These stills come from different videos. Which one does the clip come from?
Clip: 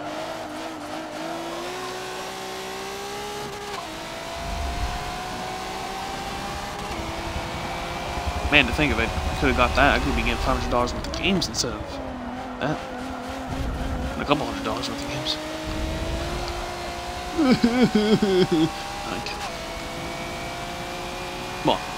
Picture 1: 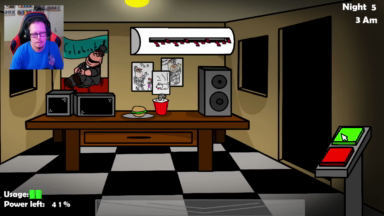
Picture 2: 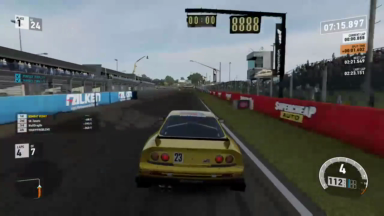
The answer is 2